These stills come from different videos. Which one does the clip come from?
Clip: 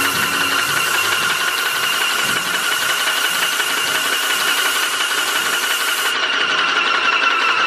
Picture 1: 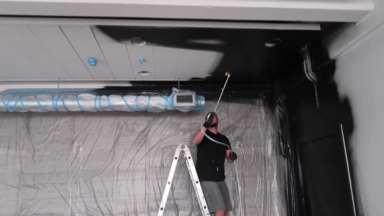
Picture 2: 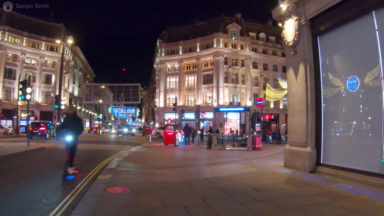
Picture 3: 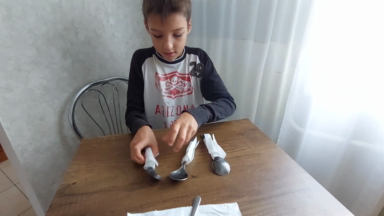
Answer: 1